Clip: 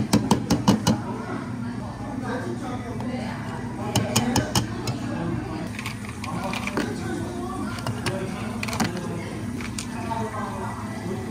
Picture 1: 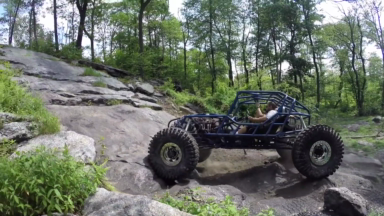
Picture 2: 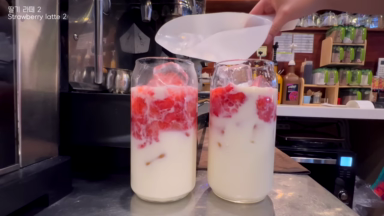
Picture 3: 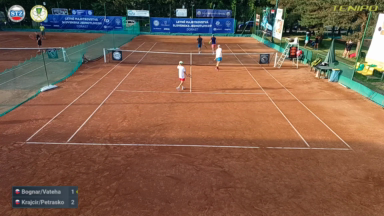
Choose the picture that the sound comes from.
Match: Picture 2